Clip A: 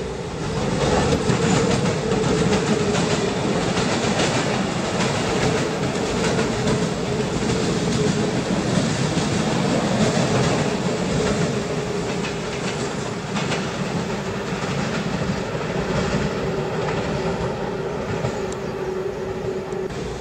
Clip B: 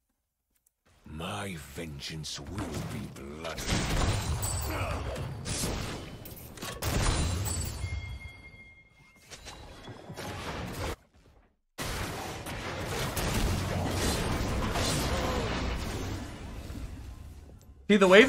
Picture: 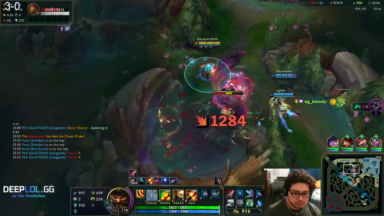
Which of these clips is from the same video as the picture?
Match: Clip B